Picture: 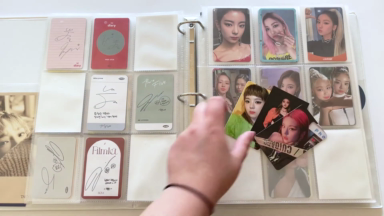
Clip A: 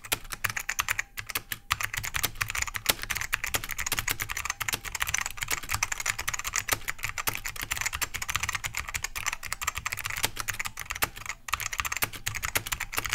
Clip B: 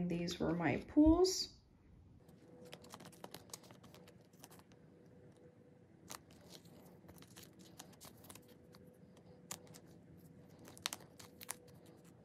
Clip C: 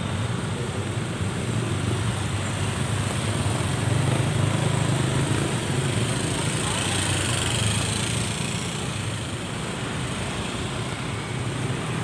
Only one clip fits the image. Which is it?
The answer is B